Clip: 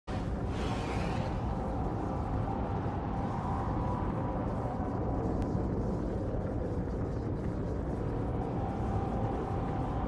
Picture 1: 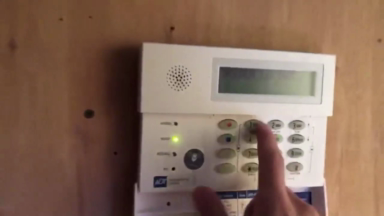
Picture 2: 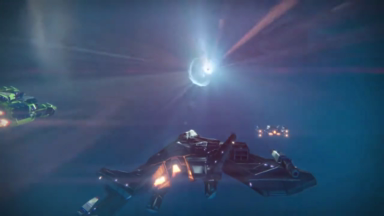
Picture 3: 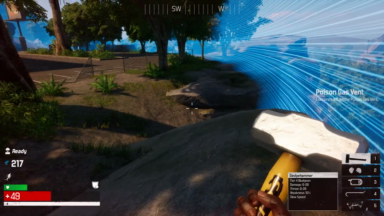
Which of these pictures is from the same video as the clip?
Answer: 2